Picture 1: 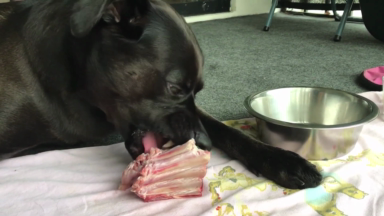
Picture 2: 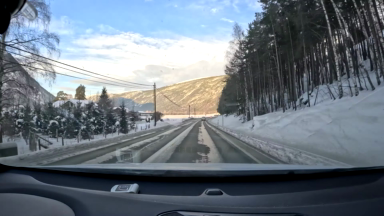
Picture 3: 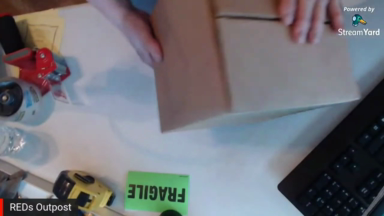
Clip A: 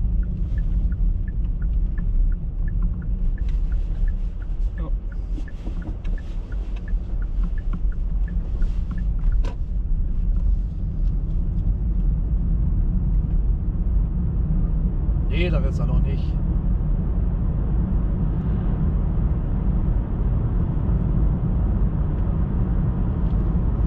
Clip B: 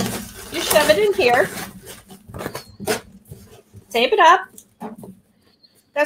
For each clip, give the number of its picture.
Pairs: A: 2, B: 3